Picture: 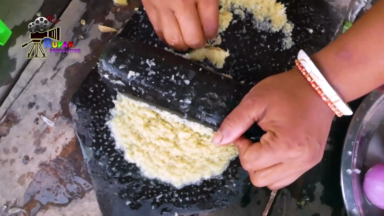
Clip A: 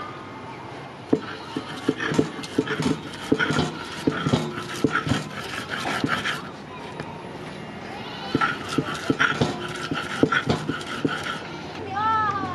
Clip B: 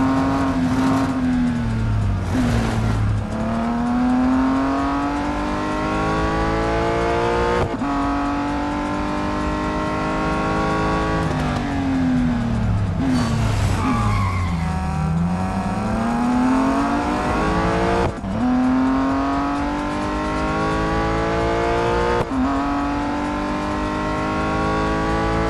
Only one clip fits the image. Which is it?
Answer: A